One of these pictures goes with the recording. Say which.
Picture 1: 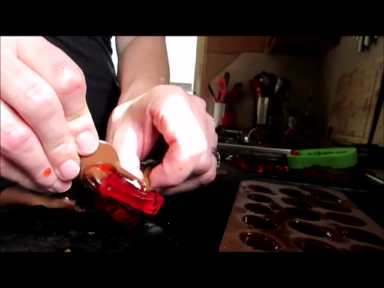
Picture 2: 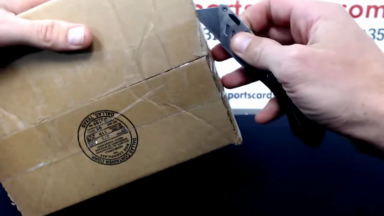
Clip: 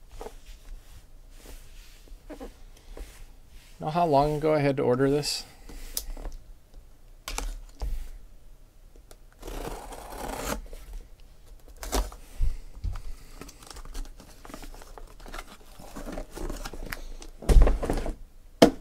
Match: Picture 2